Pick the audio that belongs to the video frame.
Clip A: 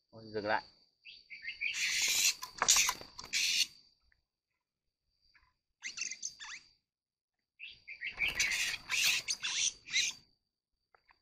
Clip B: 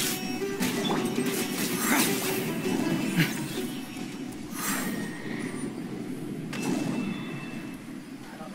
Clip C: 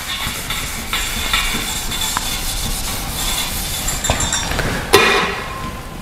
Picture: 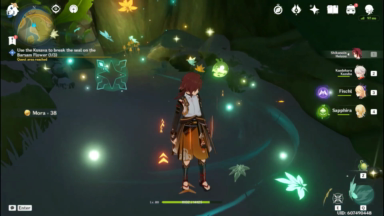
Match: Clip B